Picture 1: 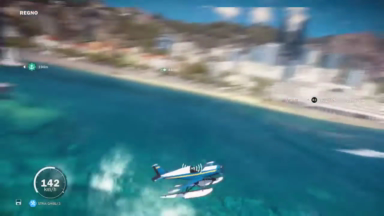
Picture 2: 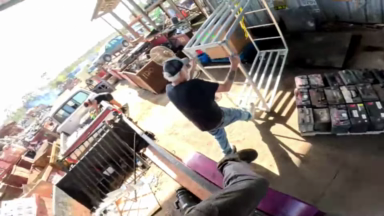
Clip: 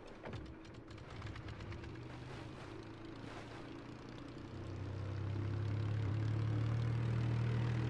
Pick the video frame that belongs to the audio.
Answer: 1